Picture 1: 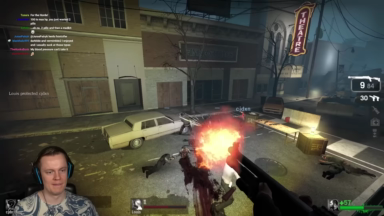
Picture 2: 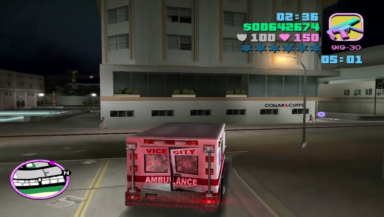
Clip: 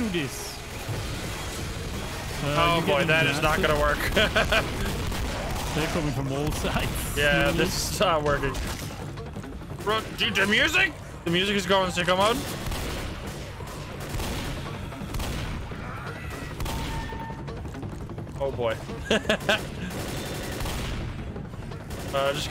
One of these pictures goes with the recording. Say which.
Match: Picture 1